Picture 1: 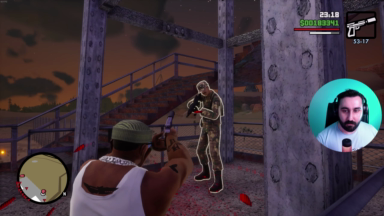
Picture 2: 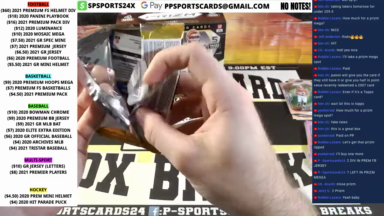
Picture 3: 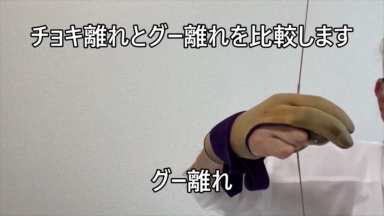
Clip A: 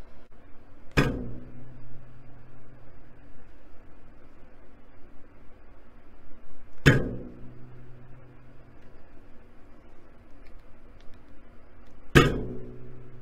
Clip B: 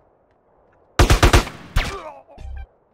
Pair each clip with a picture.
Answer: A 3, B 1